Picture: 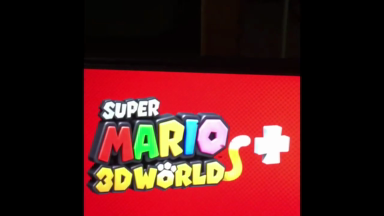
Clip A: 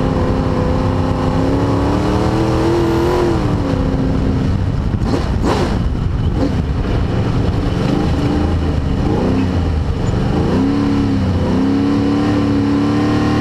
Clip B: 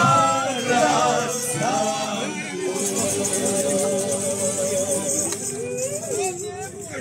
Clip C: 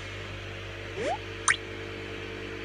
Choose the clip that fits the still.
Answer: C